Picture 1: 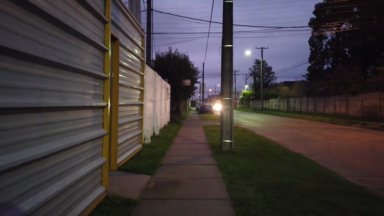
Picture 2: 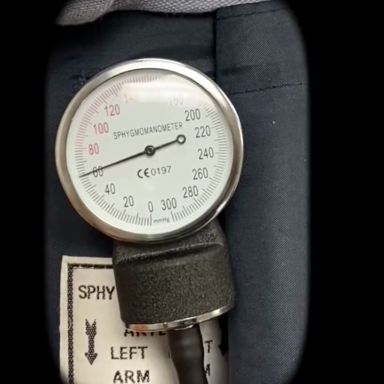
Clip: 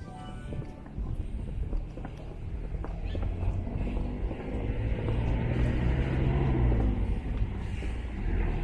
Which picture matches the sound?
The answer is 1